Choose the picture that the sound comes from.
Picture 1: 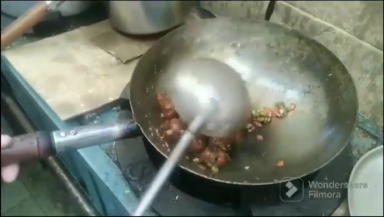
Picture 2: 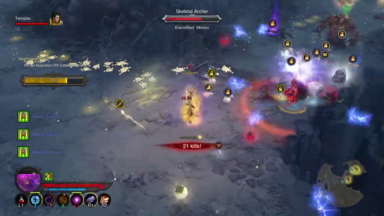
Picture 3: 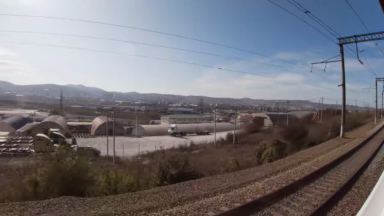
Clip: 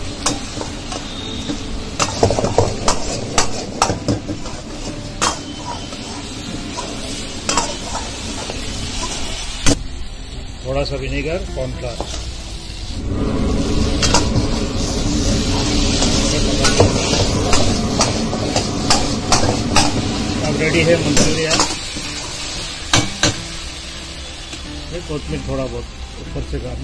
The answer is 1